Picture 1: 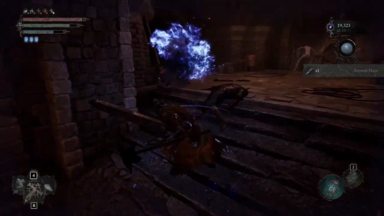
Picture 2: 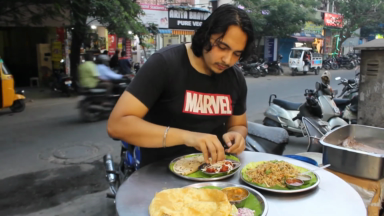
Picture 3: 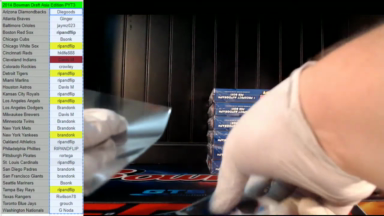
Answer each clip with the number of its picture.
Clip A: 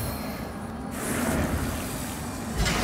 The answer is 1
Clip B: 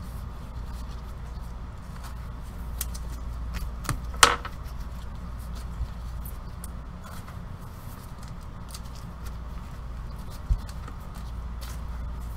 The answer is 3